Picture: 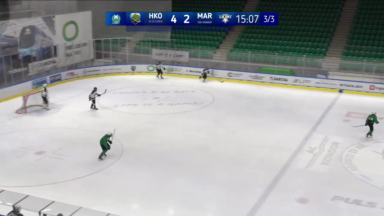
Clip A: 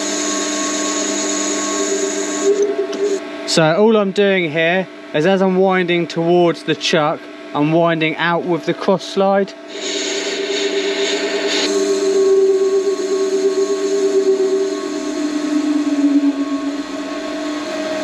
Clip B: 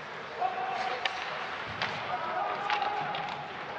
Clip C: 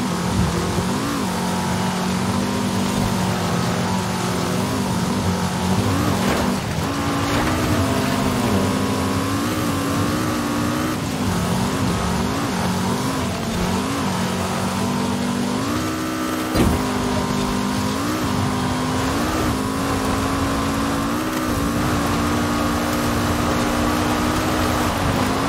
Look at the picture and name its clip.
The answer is B